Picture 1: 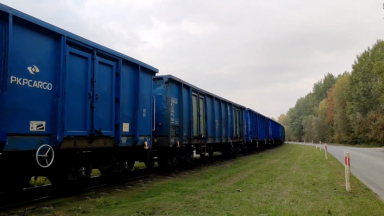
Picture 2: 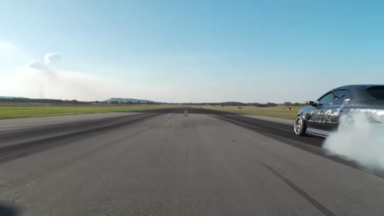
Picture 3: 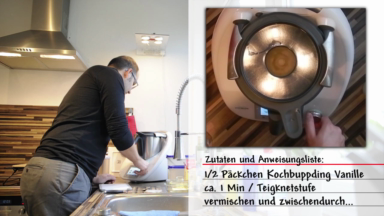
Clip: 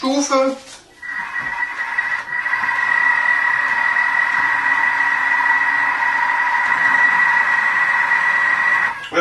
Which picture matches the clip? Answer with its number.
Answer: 3